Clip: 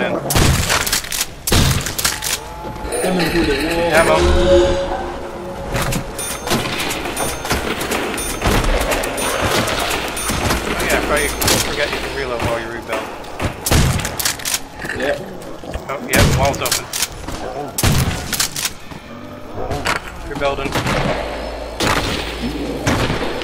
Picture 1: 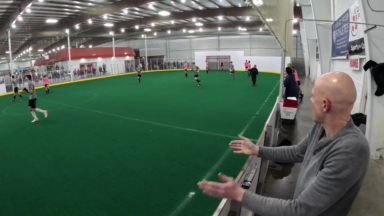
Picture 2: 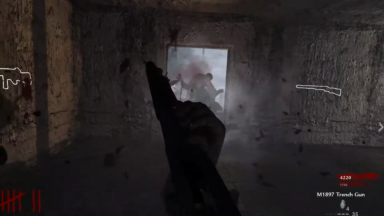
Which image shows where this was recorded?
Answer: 2